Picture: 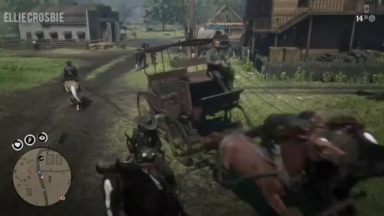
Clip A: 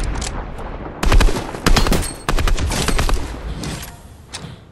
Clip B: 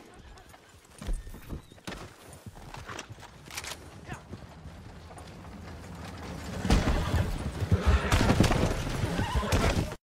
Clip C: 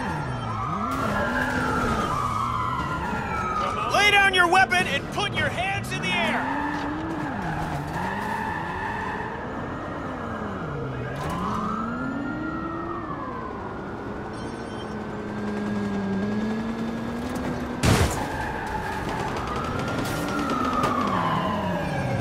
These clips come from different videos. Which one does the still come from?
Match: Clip B